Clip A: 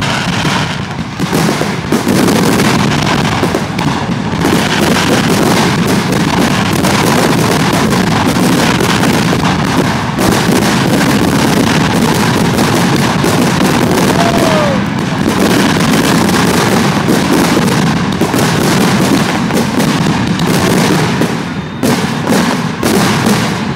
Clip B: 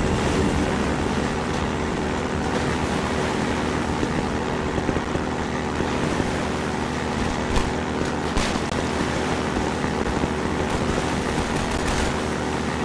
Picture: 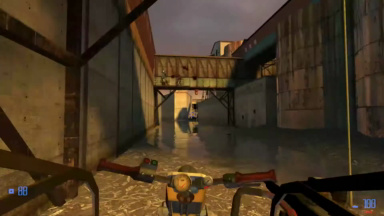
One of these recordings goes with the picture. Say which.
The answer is B